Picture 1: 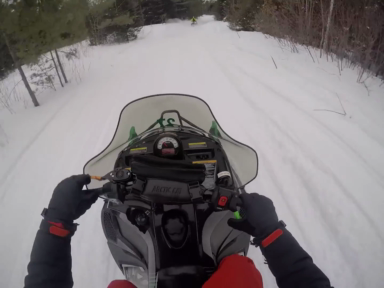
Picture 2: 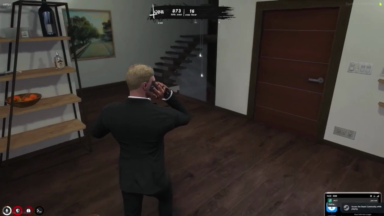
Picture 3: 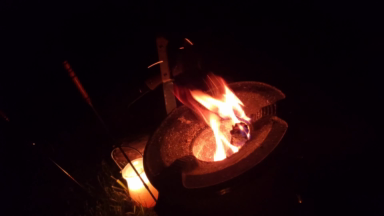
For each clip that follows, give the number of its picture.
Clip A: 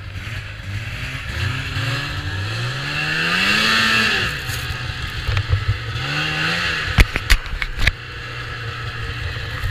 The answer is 1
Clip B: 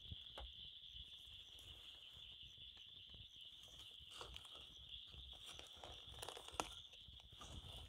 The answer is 3